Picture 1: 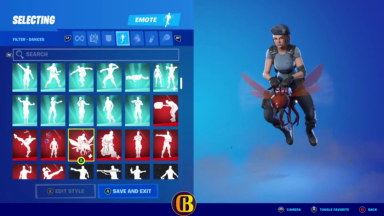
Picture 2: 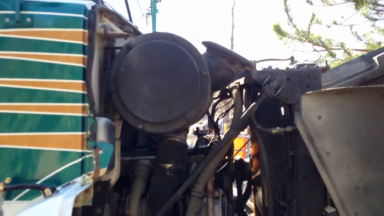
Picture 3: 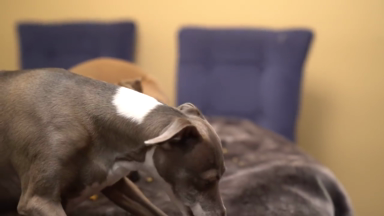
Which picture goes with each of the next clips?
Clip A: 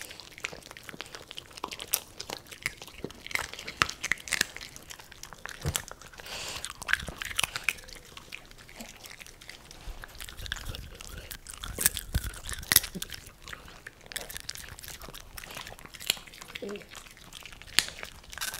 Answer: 3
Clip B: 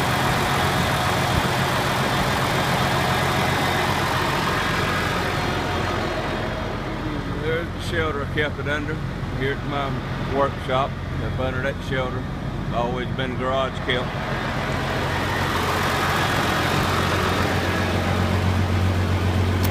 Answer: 2